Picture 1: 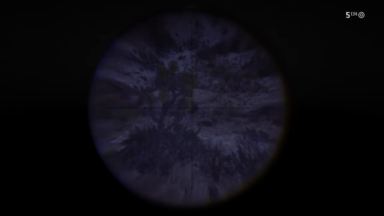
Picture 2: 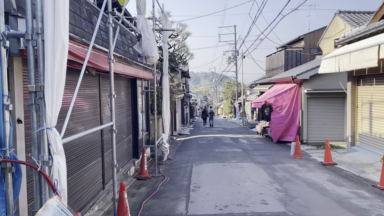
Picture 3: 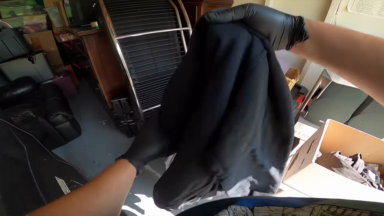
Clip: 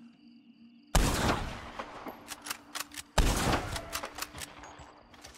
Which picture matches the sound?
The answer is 1